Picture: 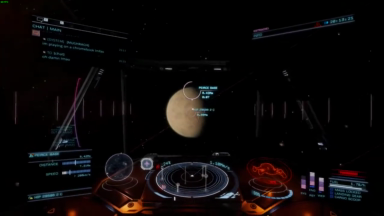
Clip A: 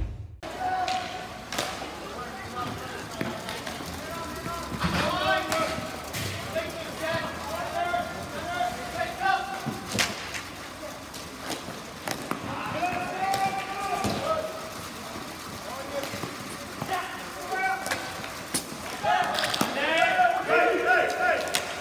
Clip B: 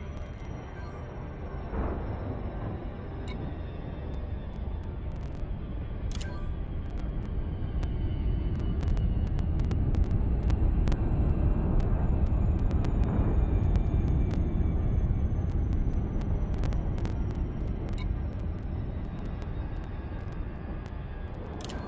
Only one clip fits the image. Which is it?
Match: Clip B